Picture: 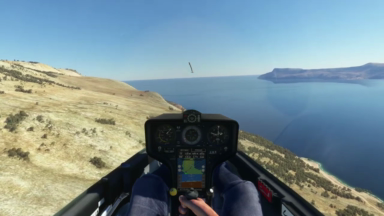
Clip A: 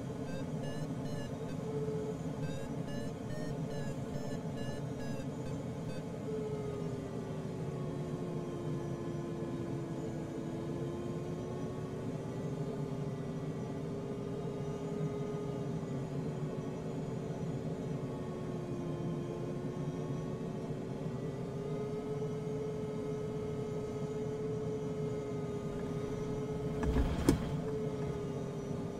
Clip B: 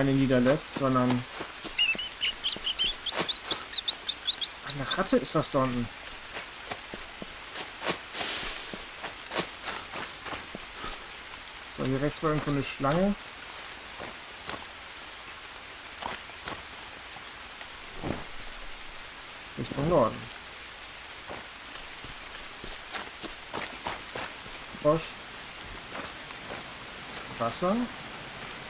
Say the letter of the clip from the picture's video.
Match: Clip A